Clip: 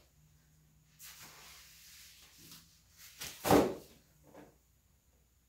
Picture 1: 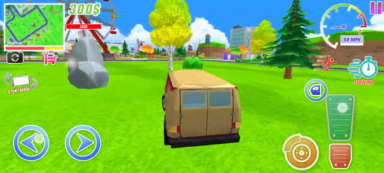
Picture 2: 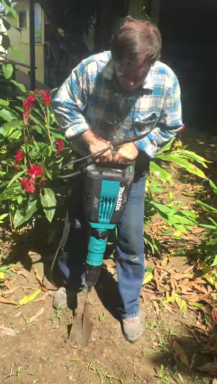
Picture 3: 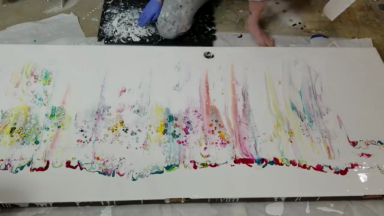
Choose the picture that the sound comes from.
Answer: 3